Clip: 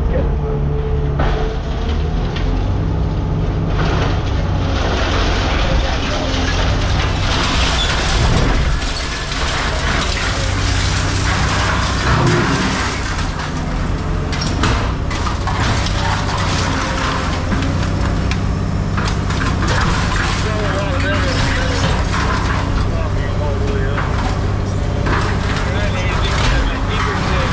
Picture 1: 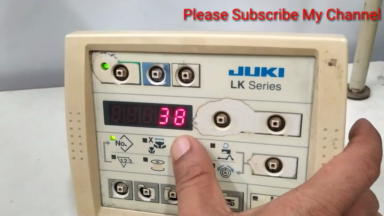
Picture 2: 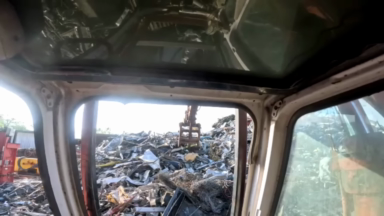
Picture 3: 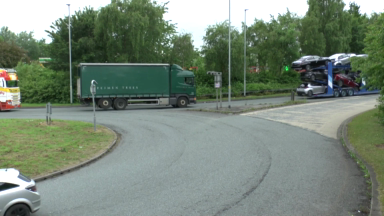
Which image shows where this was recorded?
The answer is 2